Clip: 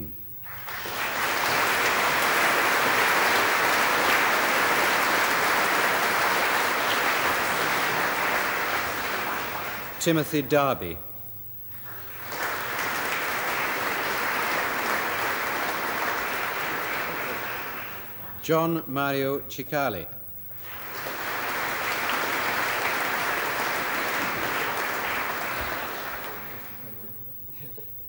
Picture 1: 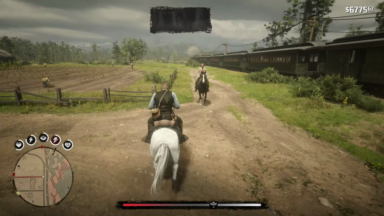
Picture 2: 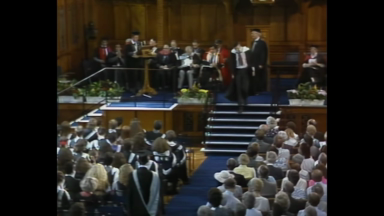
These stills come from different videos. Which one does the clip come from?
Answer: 2